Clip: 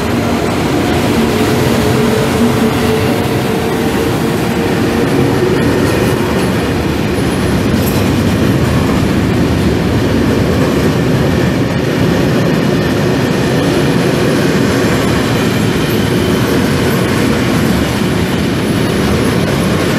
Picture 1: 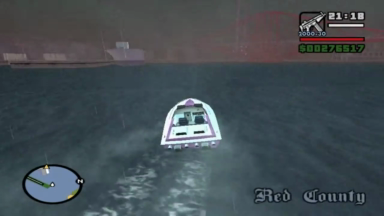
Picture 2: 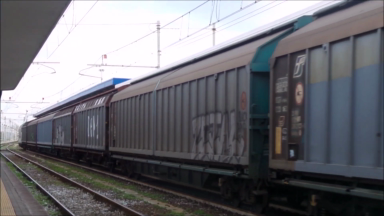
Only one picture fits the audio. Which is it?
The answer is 2